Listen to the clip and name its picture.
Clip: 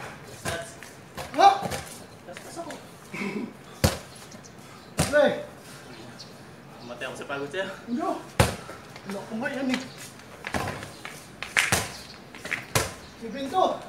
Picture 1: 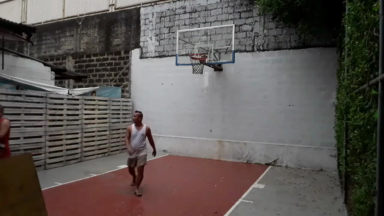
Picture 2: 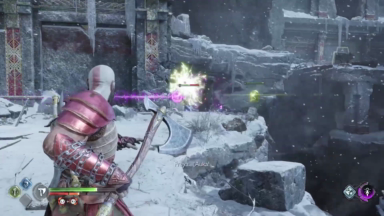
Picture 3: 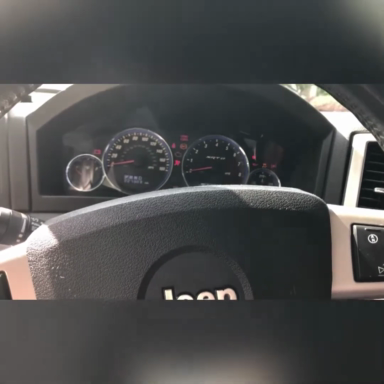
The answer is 1